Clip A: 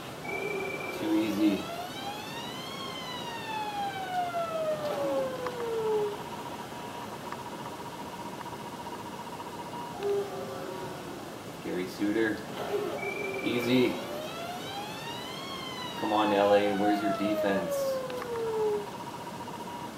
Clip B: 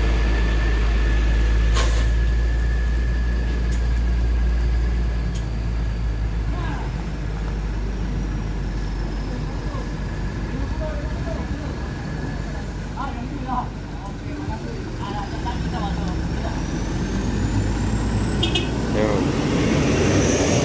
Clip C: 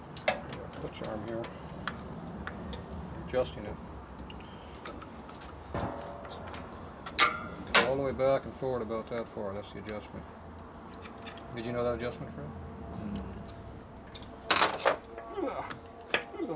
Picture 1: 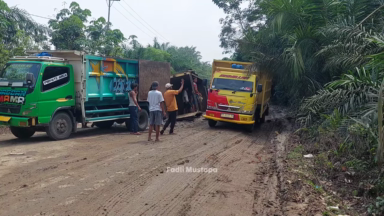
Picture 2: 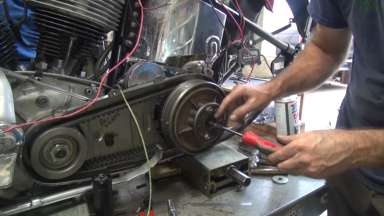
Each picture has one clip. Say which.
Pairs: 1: B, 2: C